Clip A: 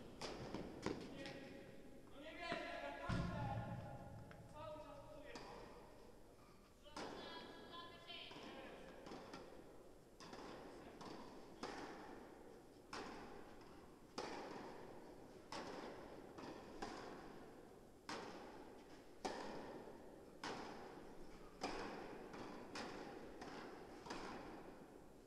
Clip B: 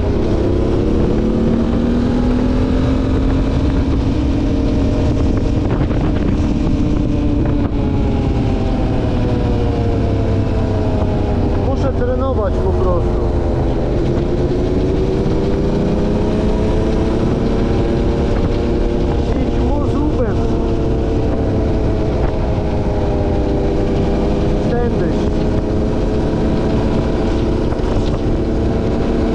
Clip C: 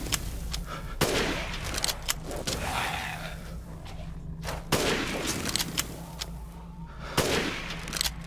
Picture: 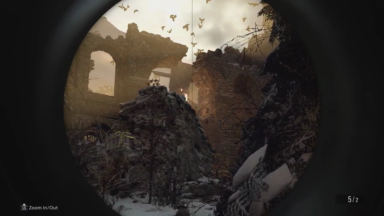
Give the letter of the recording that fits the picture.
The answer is C